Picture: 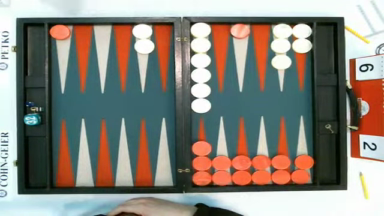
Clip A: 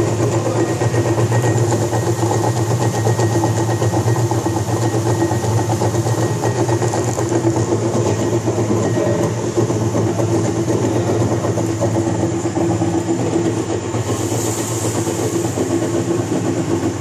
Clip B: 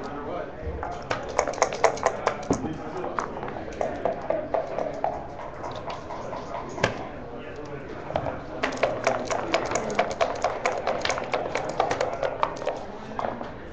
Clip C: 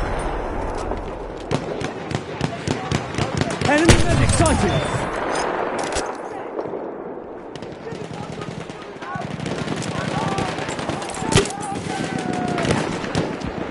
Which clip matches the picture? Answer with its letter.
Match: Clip B